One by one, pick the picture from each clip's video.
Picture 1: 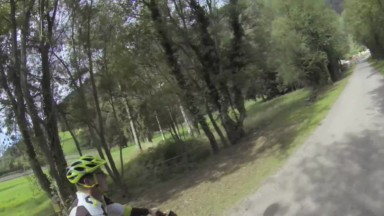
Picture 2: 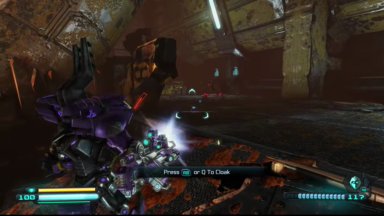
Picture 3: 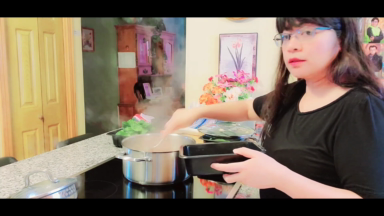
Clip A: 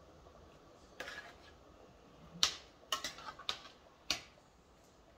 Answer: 3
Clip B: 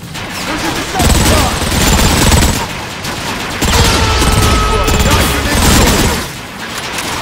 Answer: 2